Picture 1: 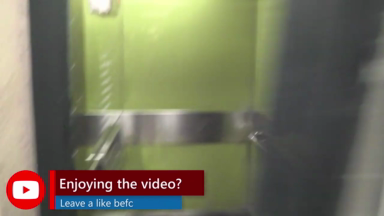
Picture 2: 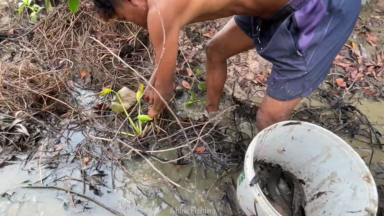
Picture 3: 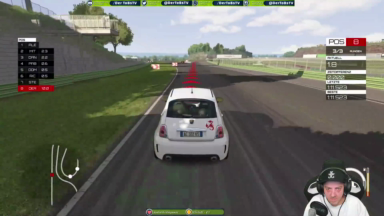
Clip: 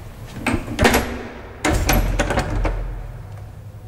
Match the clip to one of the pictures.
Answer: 1